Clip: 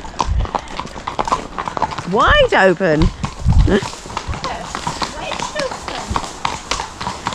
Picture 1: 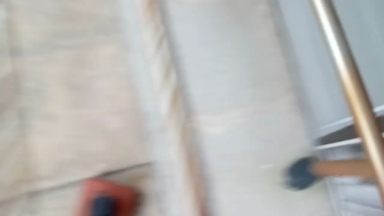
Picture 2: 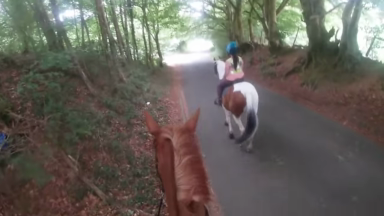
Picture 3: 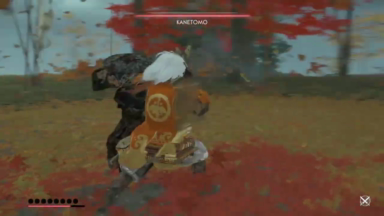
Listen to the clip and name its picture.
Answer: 2